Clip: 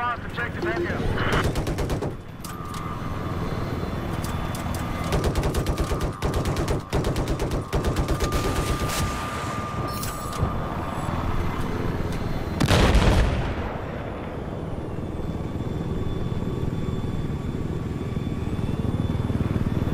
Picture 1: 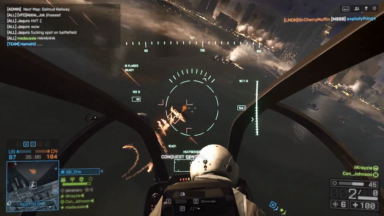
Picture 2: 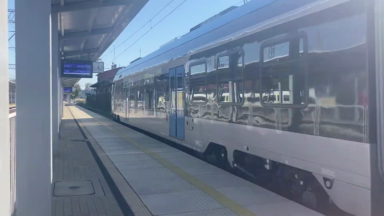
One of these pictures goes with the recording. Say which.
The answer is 1